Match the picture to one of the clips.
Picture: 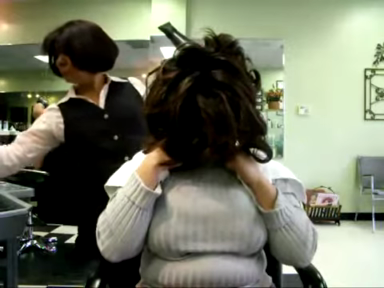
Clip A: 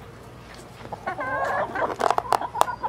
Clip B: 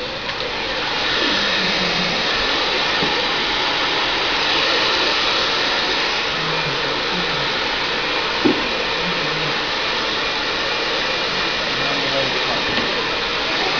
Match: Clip B